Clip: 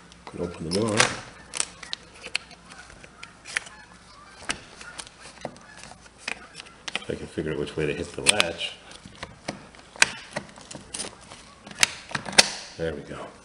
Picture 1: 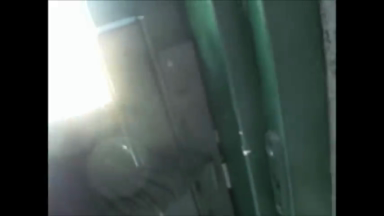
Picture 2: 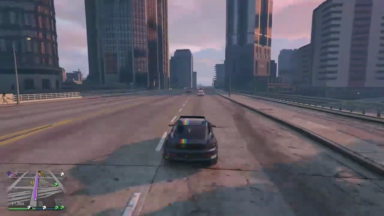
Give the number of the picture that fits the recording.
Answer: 1